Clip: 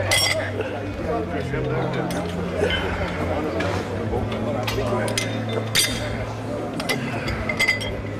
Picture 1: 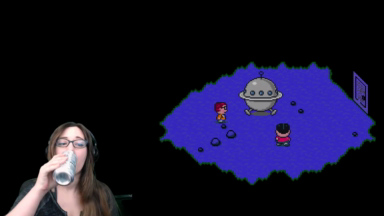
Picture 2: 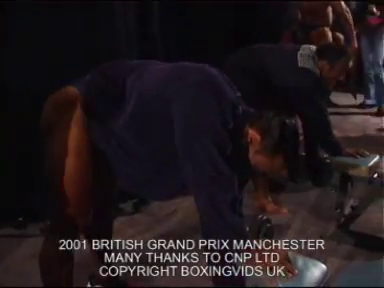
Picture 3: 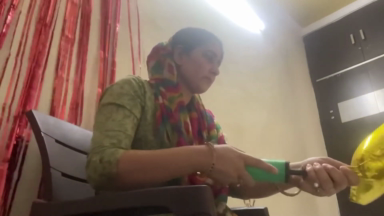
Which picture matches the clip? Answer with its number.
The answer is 2